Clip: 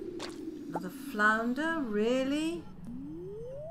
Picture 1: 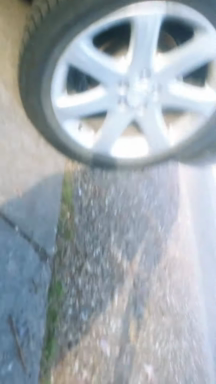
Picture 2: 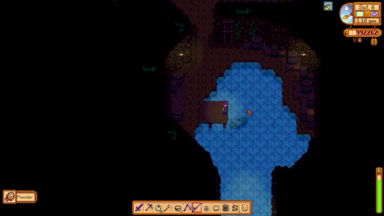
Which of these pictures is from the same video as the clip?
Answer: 2